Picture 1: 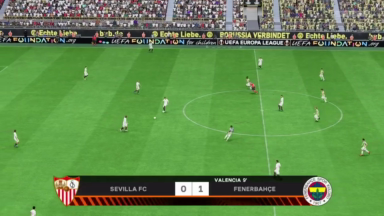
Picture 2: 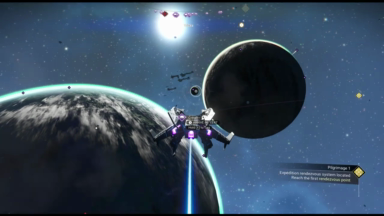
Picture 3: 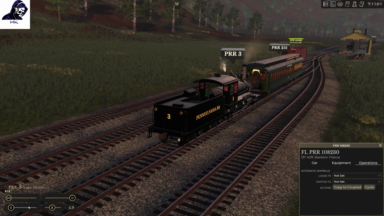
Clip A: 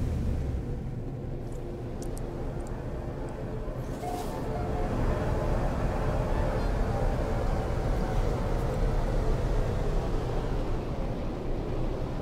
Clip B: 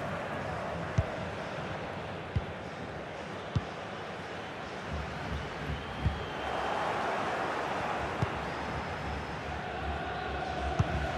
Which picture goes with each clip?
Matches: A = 2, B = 1